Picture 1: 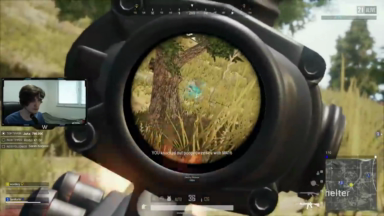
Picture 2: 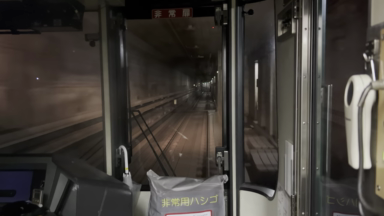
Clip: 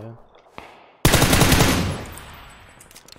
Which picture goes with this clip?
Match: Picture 1